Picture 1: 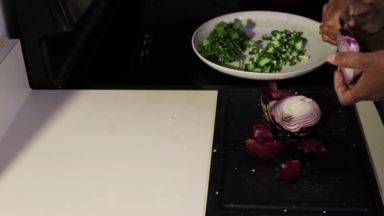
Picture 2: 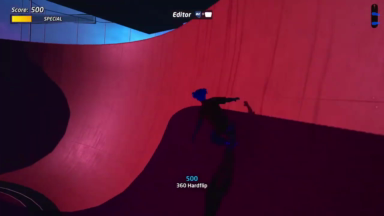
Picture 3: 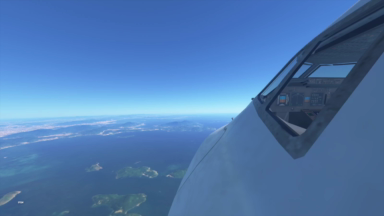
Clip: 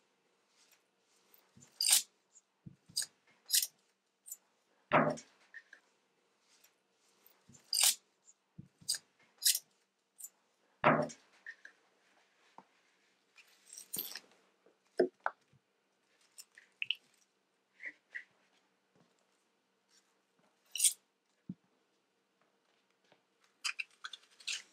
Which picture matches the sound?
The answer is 1